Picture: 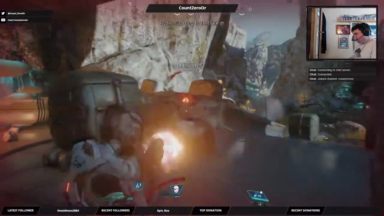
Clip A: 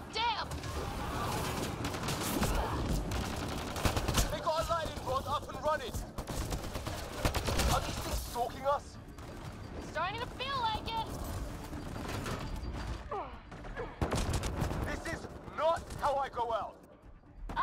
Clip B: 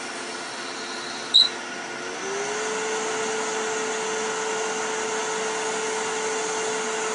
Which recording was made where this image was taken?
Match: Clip A